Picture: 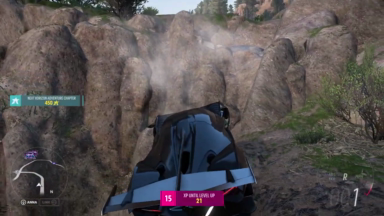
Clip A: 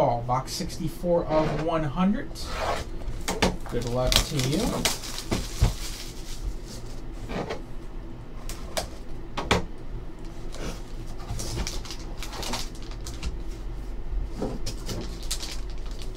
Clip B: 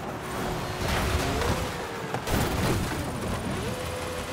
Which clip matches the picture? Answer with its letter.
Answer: B